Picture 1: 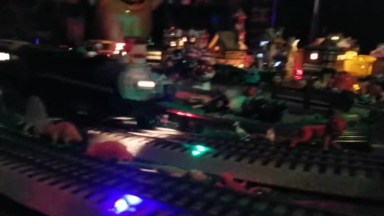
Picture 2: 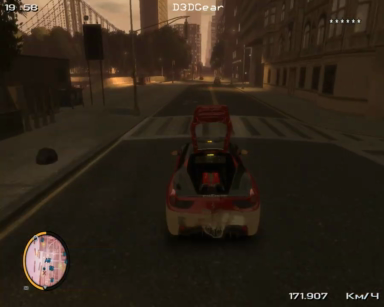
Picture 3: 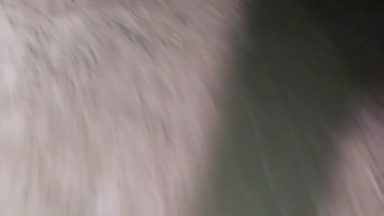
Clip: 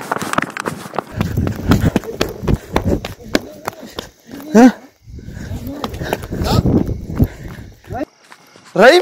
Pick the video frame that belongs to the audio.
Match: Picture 3